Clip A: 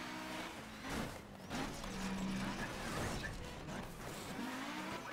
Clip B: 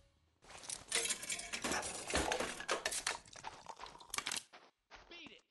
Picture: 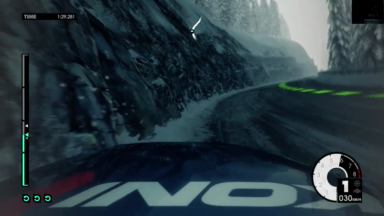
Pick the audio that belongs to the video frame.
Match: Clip A